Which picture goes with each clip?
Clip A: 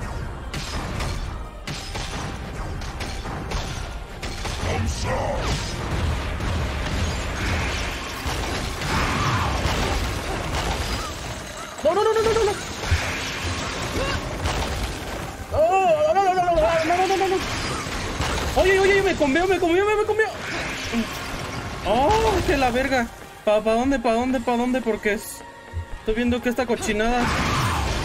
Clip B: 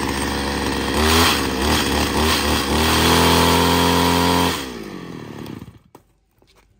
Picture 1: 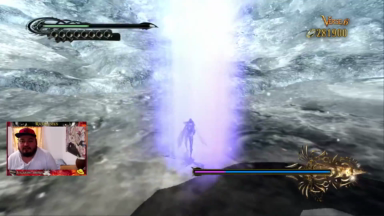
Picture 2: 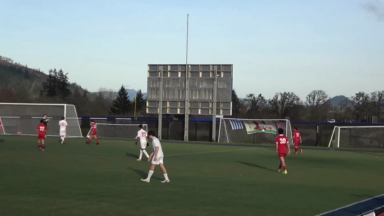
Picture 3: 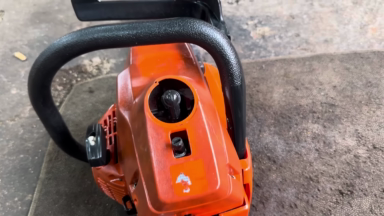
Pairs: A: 1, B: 3